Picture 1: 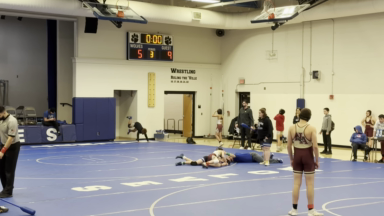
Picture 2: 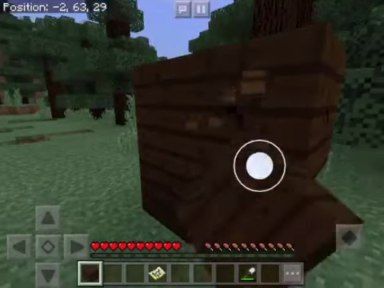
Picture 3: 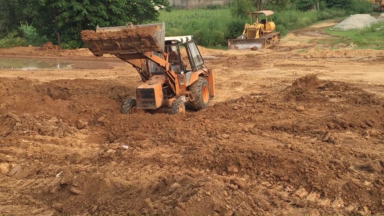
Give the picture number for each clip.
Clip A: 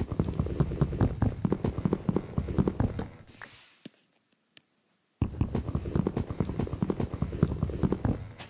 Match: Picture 2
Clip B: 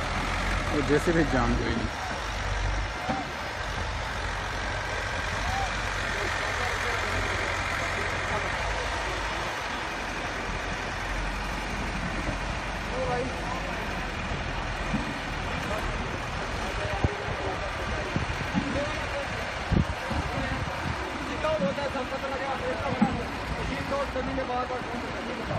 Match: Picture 3